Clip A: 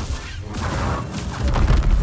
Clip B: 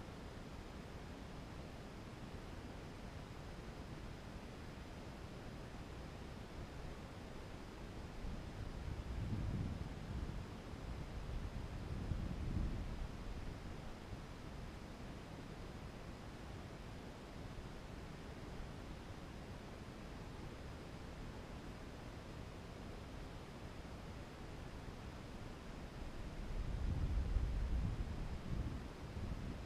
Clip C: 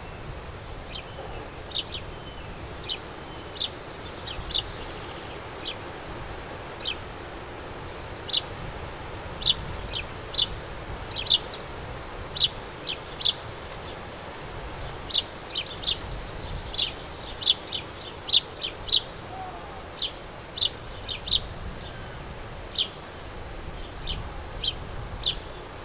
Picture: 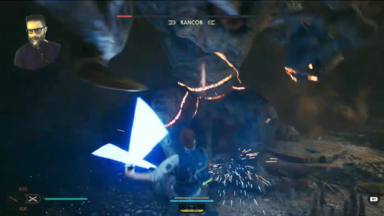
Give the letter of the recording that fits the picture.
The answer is A